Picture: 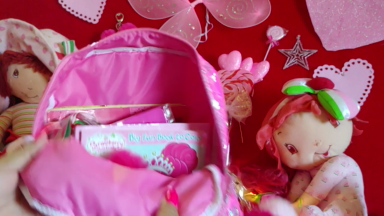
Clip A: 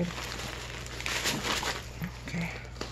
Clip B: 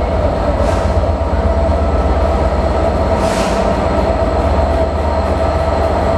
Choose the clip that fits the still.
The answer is A